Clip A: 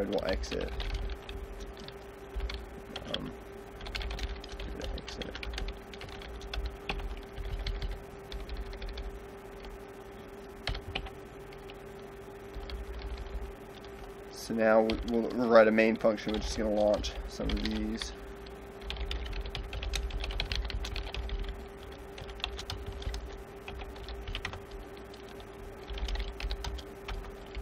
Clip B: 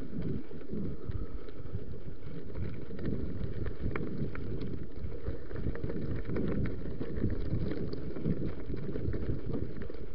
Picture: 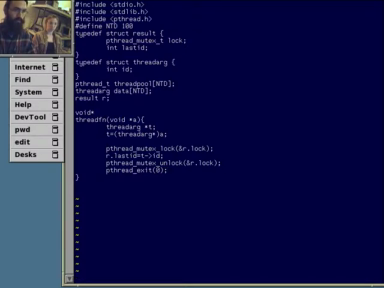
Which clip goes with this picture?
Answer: A